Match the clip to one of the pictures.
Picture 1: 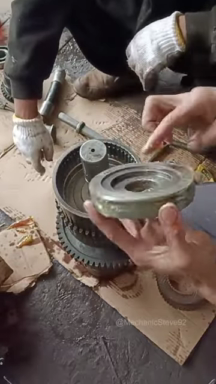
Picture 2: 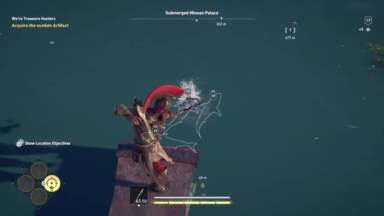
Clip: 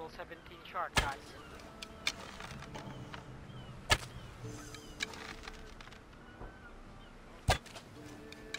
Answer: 2